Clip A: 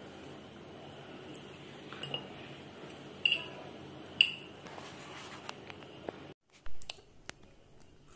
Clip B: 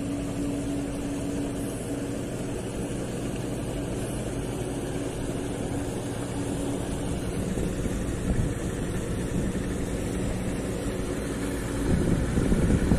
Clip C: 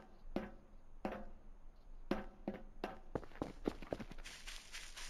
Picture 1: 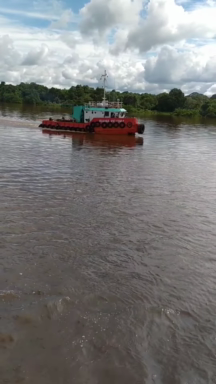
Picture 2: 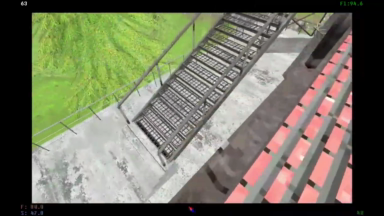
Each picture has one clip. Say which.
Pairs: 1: B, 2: C